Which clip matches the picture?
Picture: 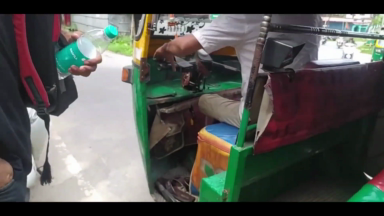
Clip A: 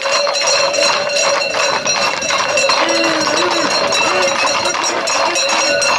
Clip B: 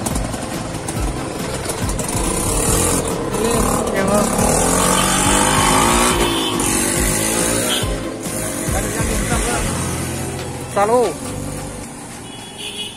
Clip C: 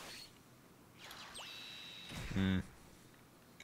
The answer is B